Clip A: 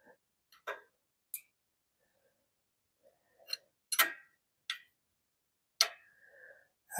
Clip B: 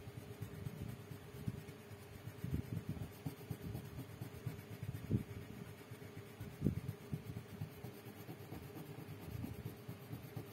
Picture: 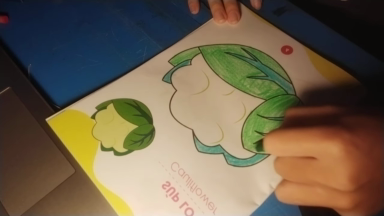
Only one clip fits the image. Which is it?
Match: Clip B